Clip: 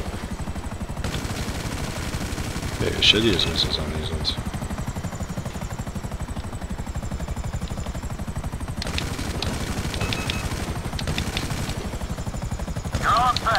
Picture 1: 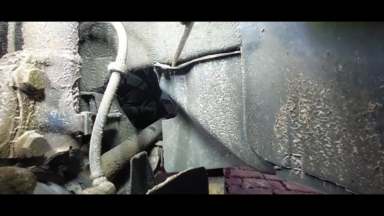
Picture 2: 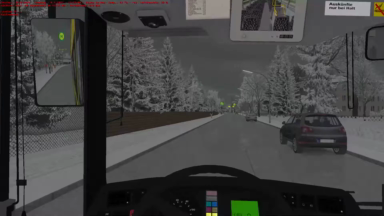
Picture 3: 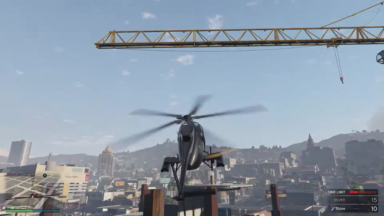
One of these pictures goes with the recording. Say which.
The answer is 3